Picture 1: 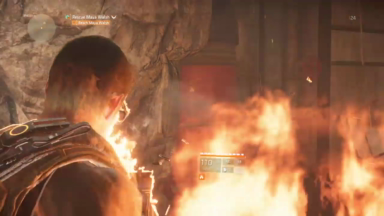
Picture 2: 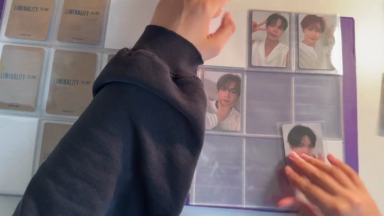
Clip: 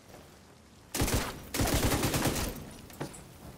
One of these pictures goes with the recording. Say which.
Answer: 1